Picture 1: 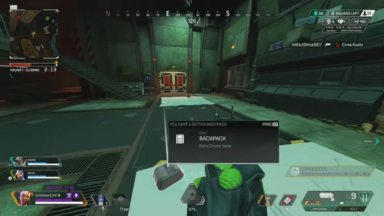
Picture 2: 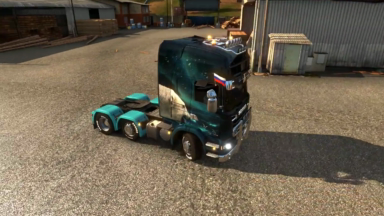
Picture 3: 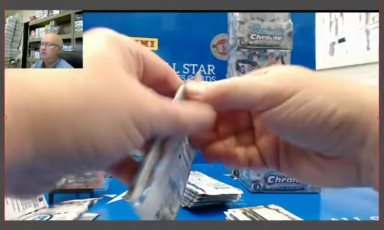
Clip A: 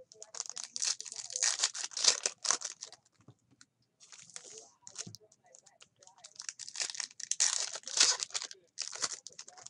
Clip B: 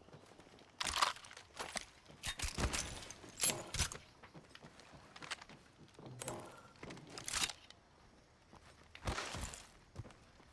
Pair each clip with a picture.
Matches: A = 3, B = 1